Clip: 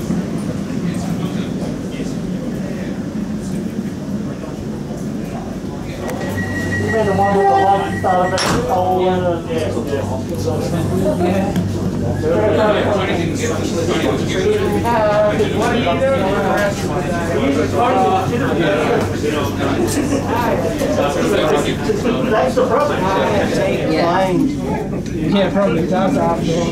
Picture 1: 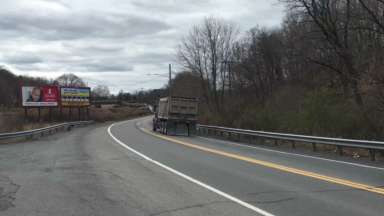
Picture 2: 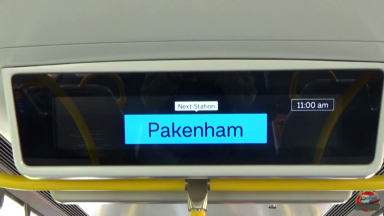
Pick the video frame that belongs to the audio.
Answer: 2